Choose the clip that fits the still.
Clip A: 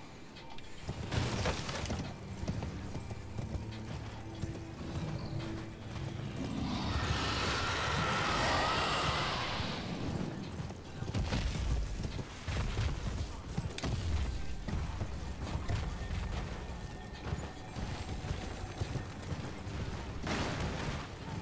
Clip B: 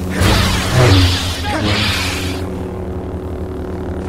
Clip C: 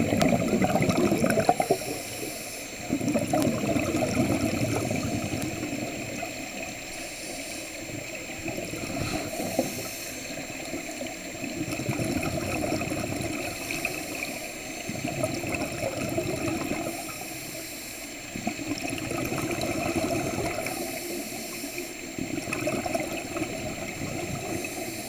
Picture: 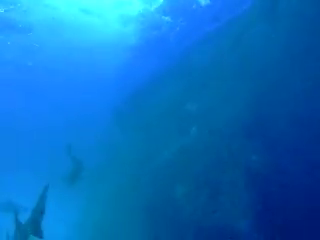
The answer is C